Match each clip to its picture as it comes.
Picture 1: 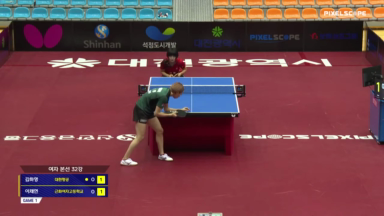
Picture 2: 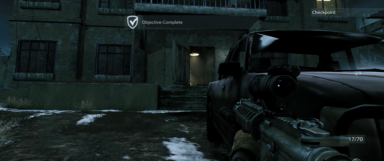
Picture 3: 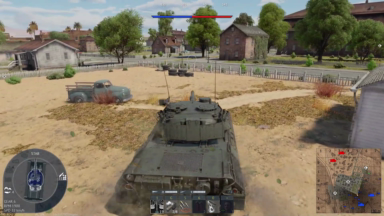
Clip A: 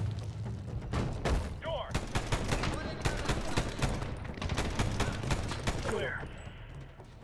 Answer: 2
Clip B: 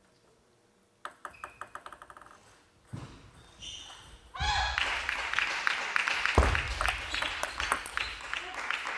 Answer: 1